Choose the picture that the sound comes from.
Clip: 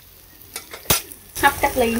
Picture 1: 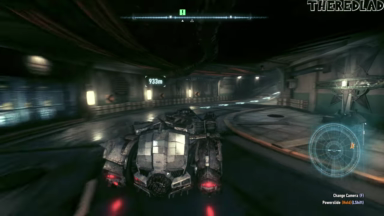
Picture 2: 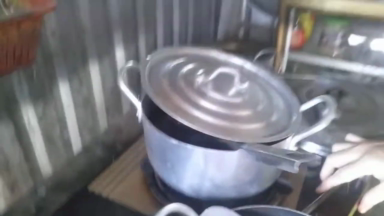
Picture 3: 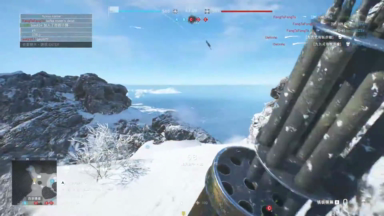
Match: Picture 2